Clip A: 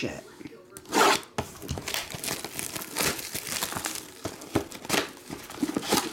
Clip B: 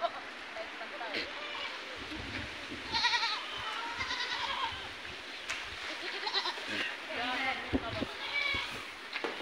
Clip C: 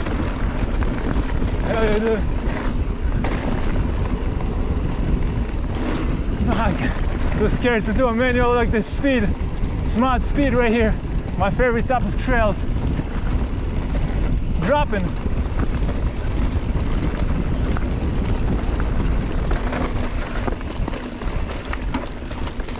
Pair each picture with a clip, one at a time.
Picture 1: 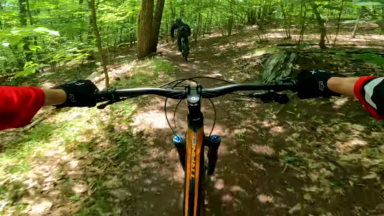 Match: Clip C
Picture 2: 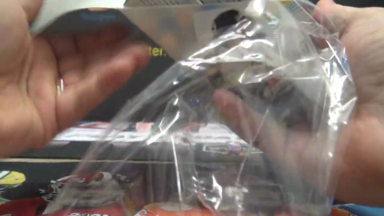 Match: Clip A